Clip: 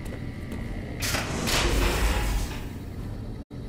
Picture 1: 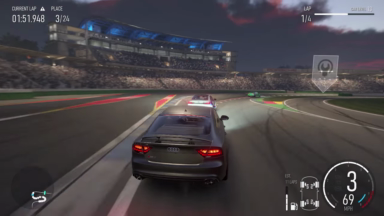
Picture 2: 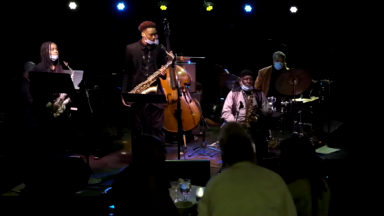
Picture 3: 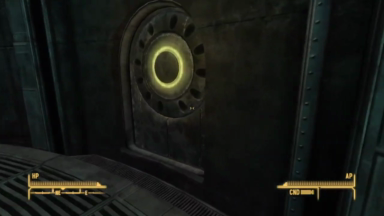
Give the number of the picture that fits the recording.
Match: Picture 3